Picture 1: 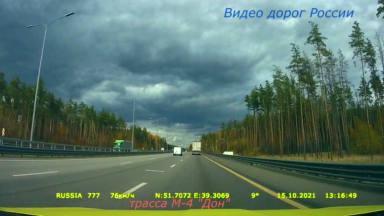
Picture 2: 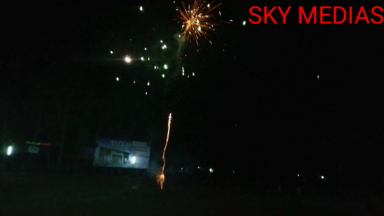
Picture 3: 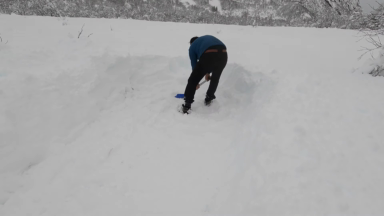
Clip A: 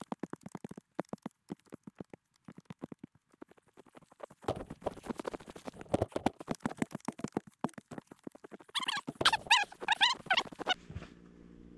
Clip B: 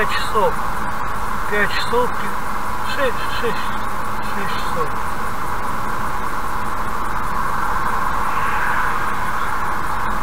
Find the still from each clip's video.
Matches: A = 3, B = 1